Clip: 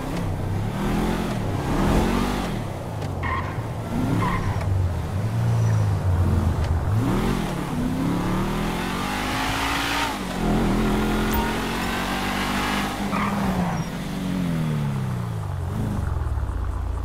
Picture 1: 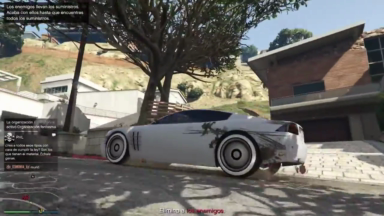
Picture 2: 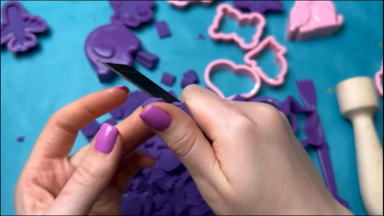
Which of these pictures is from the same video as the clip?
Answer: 1